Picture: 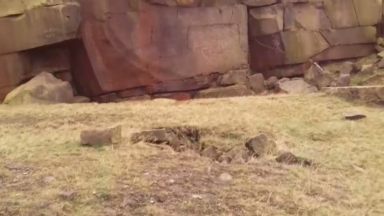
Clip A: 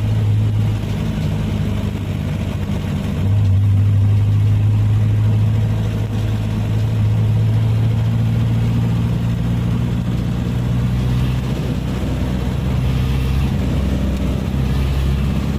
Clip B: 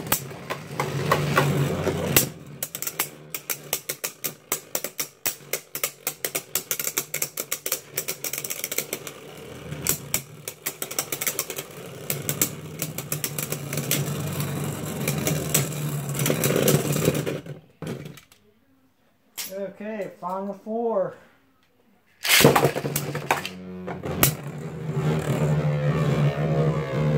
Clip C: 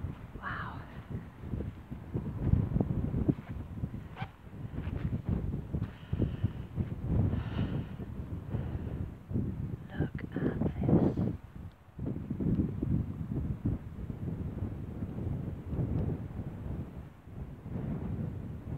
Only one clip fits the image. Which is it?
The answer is C